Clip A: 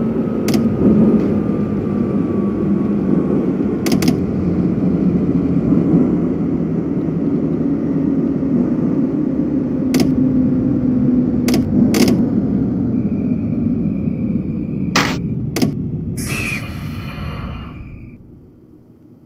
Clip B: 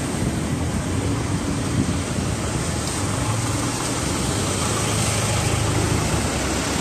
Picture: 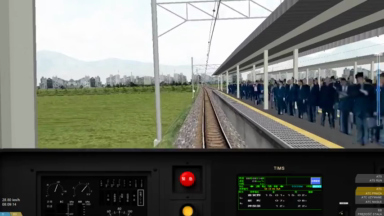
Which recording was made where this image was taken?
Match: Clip A